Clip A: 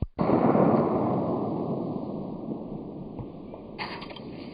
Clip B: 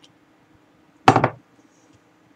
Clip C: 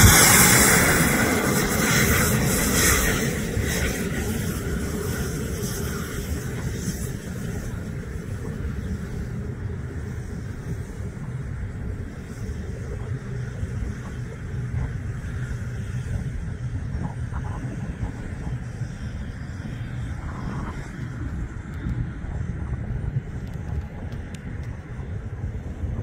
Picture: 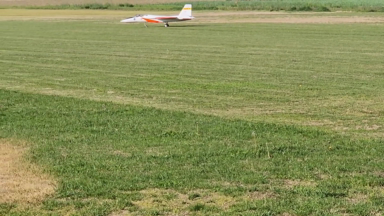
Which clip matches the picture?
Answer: C